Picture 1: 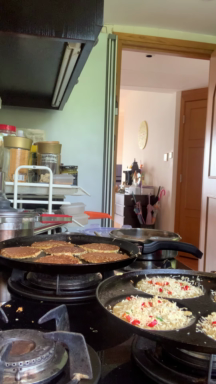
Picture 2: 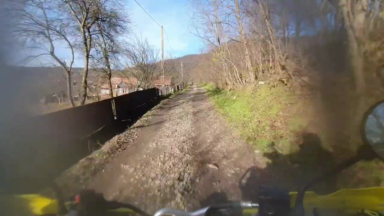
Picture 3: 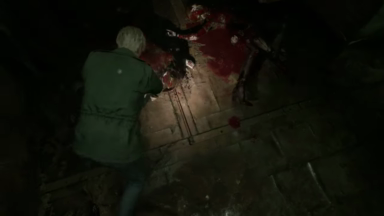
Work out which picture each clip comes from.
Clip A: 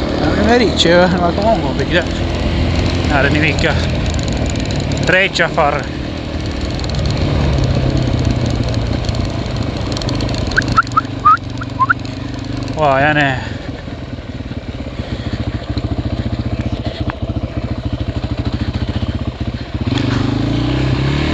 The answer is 2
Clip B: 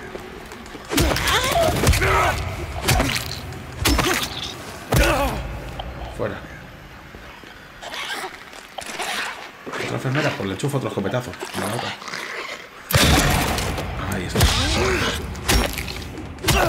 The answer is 3